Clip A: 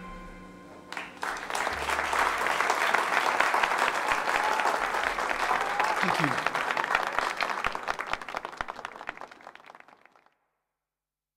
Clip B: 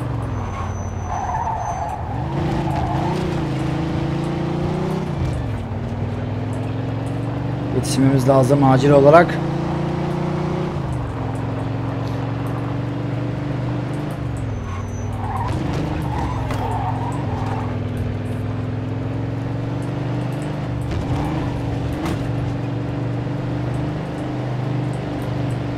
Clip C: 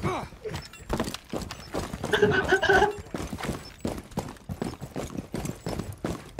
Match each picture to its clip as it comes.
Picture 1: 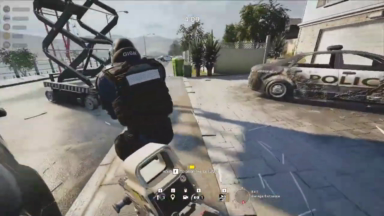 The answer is C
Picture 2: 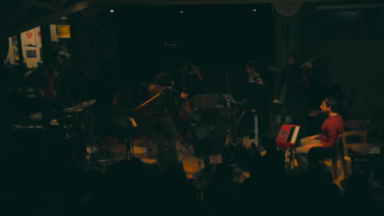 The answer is A